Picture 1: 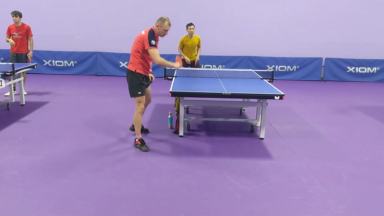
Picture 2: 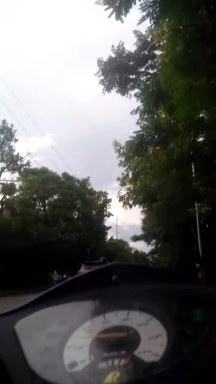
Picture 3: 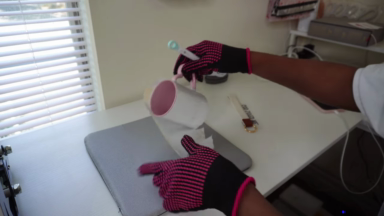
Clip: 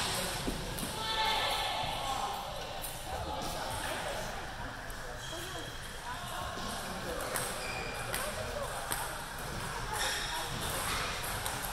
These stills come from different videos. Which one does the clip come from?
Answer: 1